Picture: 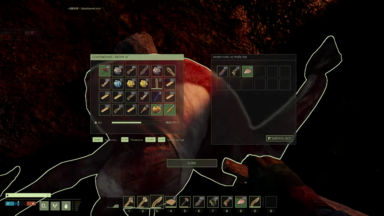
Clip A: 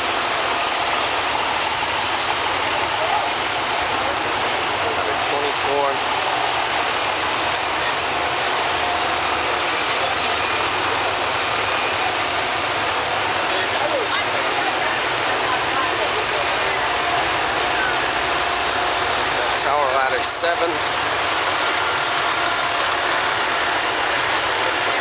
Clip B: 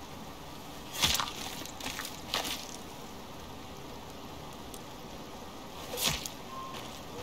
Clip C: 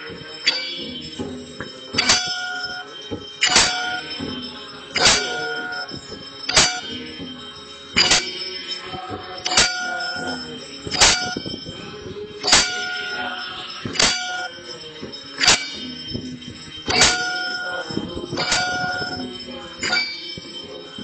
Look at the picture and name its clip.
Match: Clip B